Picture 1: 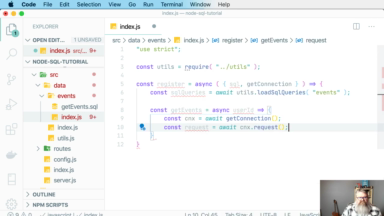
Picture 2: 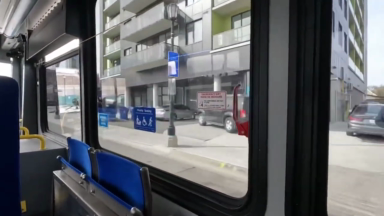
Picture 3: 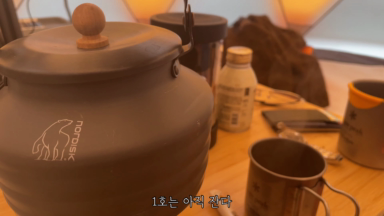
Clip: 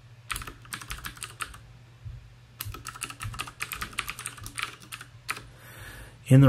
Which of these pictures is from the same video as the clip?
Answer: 1